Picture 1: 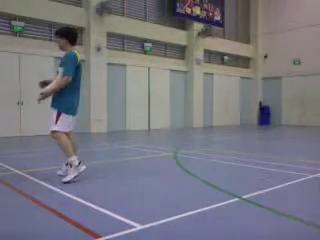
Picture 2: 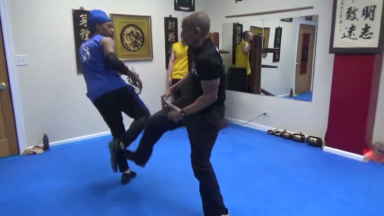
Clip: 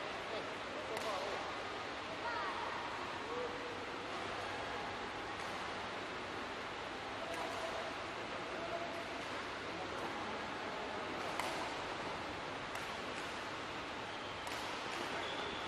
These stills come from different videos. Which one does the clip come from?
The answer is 1